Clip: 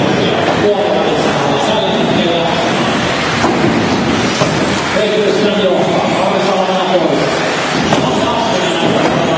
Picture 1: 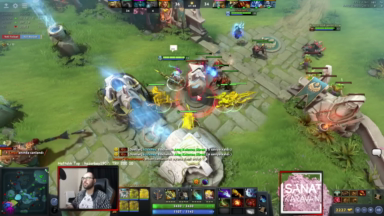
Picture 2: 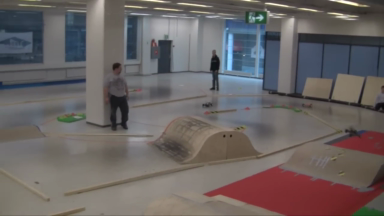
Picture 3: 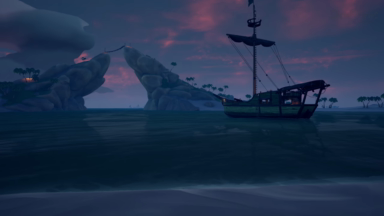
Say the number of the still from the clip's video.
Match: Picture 2